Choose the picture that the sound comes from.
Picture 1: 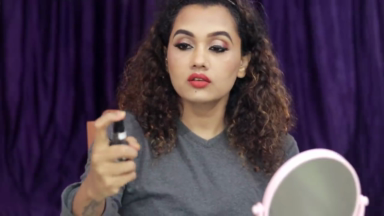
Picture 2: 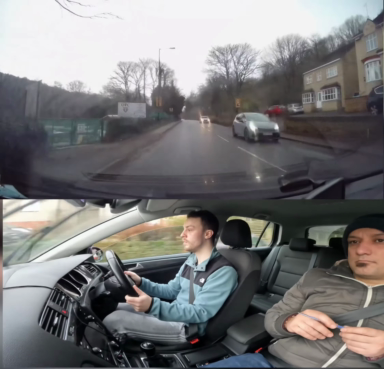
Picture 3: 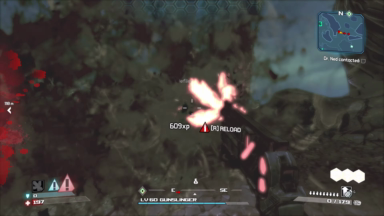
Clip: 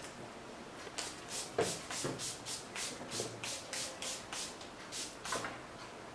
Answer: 1